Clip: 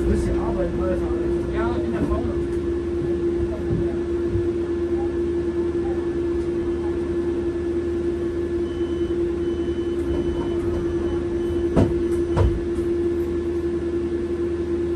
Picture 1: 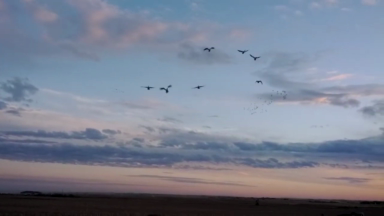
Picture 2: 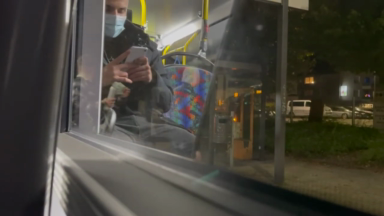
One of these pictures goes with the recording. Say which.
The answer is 2